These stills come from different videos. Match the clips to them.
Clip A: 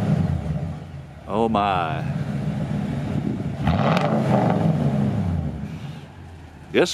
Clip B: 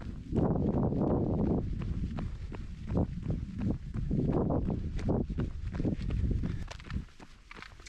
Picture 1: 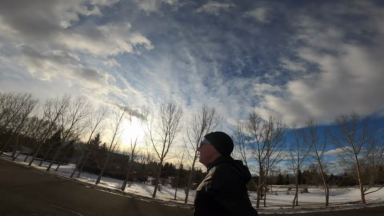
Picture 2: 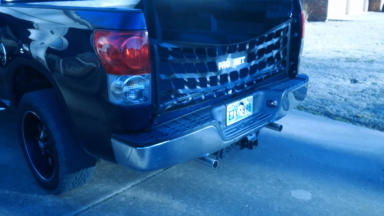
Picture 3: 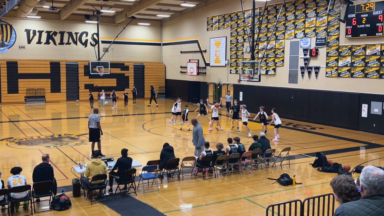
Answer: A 2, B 1